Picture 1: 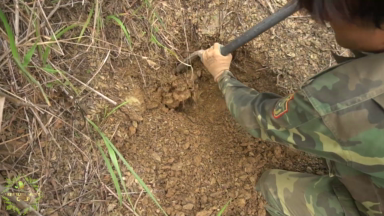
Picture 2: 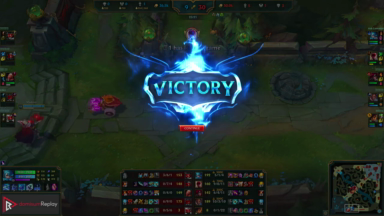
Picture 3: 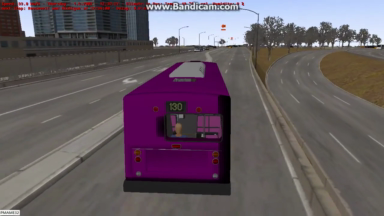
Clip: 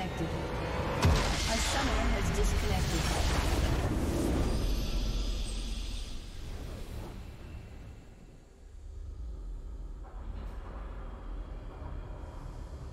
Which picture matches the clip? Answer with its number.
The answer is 2